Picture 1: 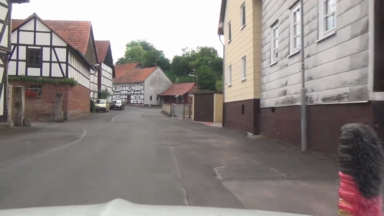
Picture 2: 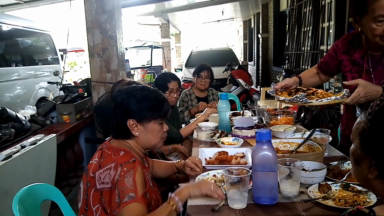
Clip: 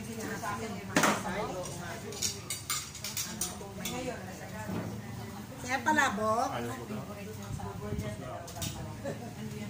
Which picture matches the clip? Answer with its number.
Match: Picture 2